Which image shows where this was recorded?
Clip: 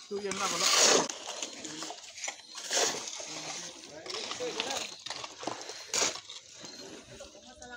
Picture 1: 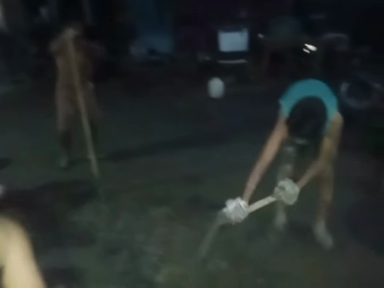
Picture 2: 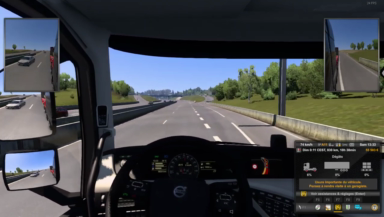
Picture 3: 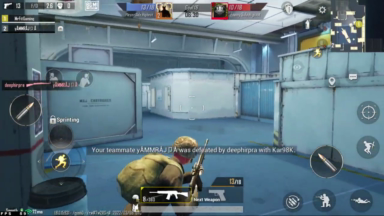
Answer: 1